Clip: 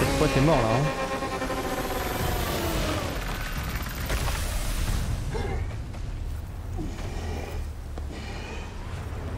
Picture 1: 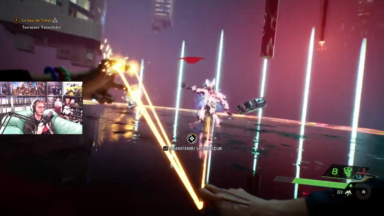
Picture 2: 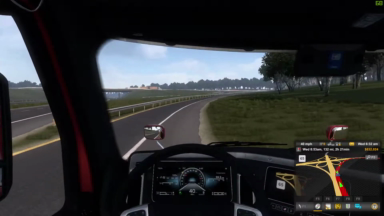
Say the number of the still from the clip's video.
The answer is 1